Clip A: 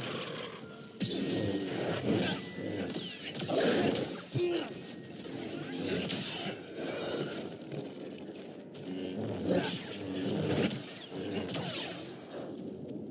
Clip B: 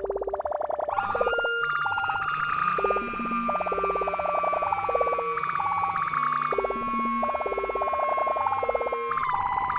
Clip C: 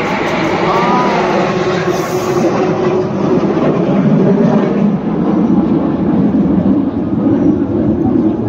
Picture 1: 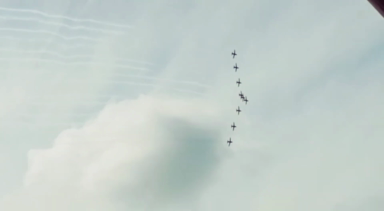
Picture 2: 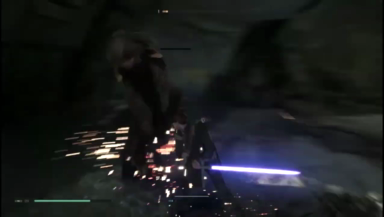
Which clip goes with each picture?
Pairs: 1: C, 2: A